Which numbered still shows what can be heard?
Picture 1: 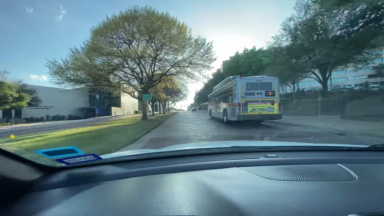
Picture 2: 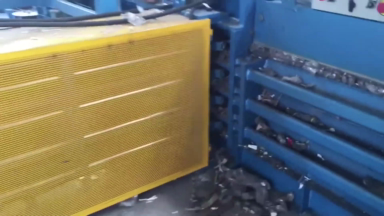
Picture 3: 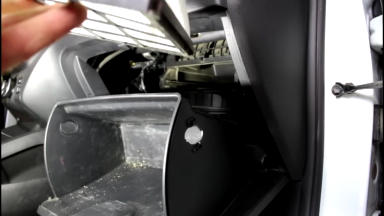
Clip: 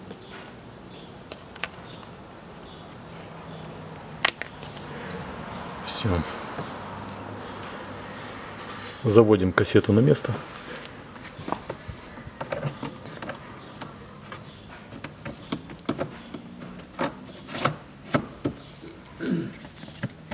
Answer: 3